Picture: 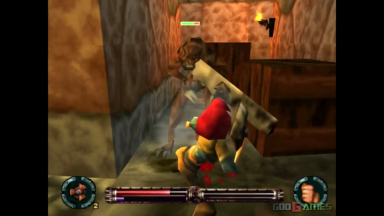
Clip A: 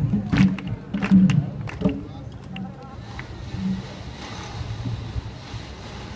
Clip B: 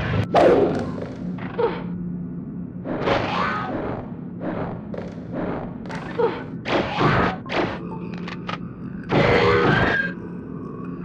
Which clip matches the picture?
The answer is B